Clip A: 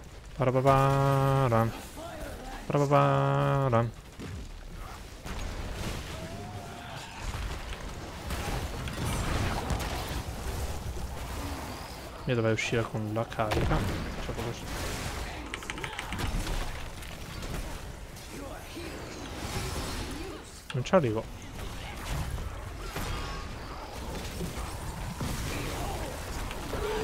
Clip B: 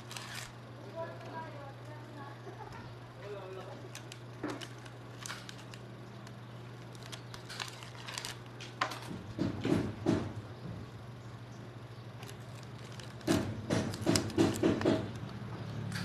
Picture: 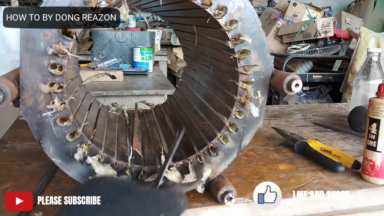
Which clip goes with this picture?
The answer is B